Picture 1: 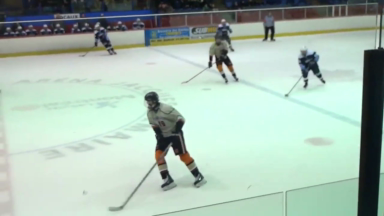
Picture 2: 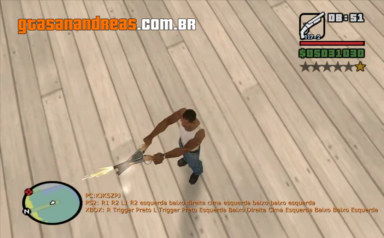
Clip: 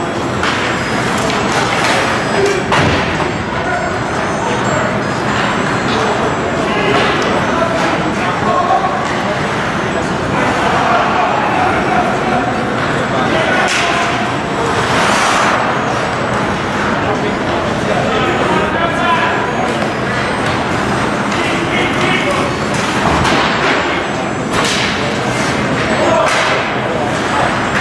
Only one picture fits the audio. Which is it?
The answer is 1